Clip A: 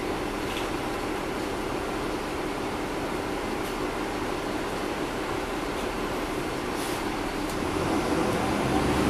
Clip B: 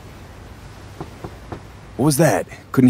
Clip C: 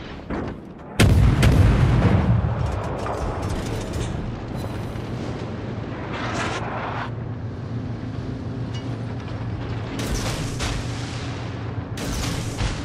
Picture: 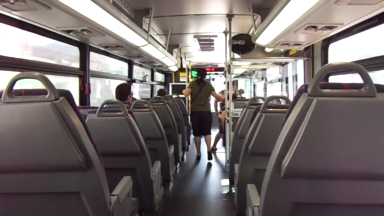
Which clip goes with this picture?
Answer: A